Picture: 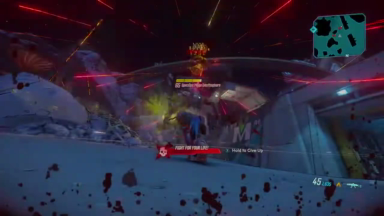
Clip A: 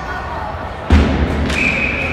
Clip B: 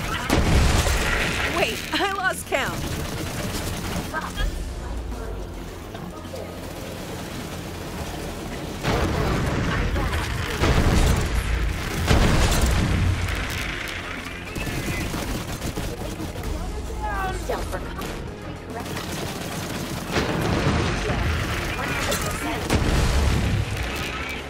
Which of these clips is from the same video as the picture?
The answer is B